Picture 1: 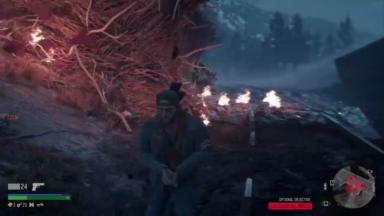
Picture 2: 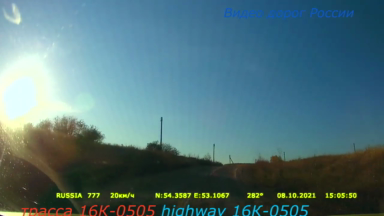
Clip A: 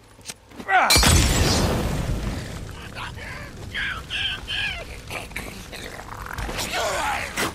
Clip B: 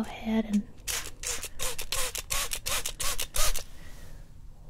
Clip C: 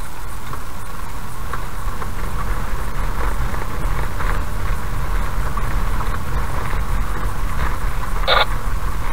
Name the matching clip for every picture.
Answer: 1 A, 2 C